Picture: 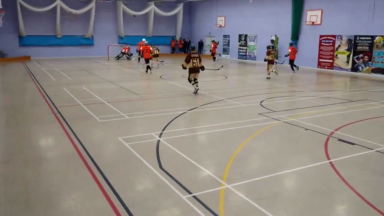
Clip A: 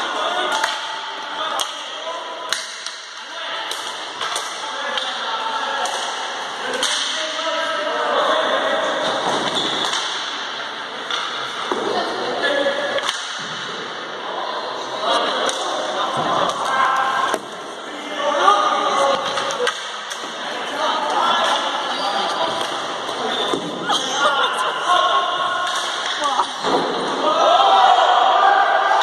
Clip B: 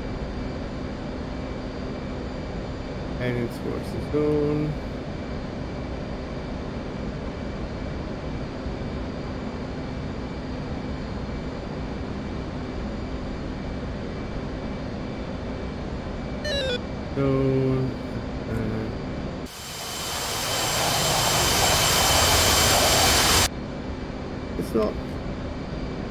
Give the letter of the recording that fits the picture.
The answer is A